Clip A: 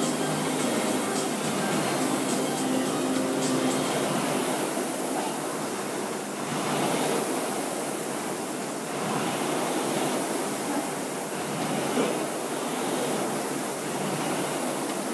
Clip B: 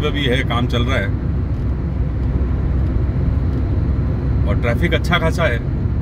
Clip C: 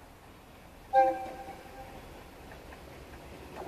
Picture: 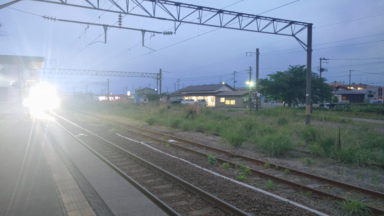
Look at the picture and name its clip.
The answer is C